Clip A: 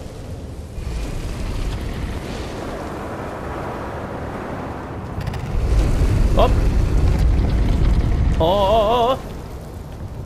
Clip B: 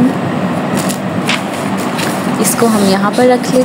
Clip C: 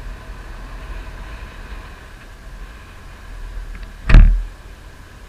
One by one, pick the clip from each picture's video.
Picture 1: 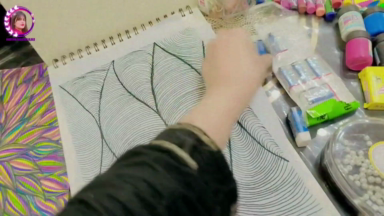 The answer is B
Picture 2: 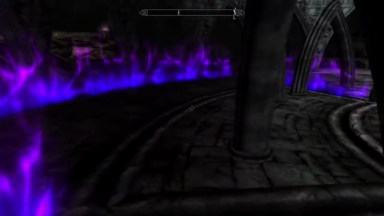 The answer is A